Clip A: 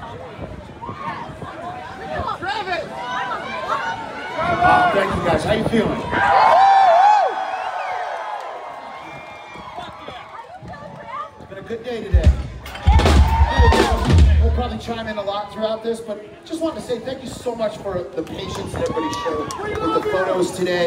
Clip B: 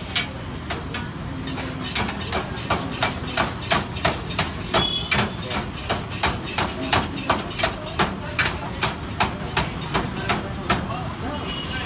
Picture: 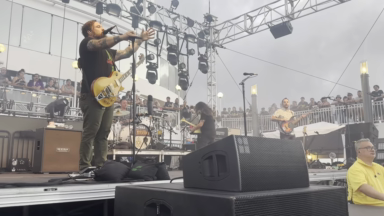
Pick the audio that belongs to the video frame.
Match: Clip A